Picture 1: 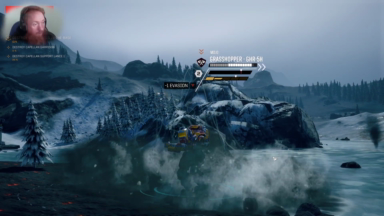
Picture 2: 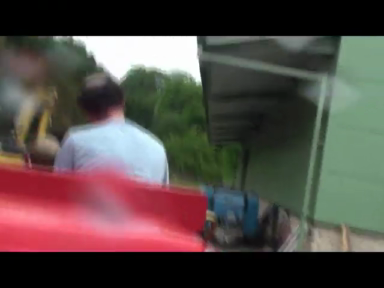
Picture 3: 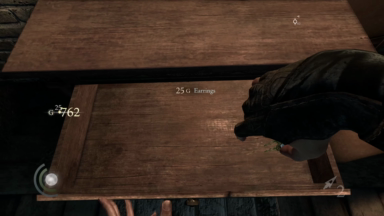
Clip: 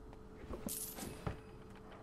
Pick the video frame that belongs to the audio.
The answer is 3